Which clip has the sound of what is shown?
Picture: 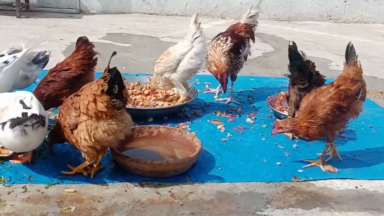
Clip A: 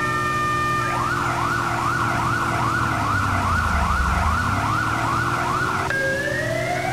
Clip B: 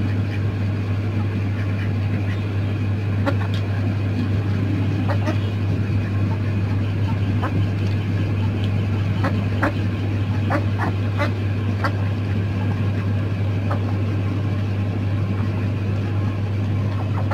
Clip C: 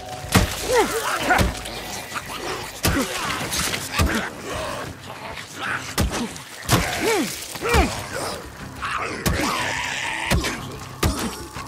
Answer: B